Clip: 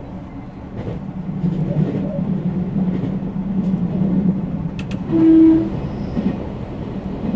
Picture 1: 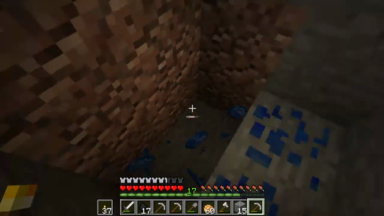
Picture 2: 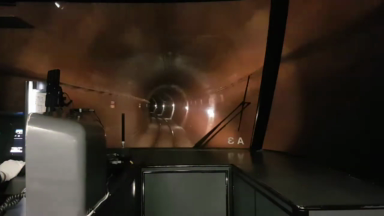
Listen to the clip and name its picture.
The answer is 2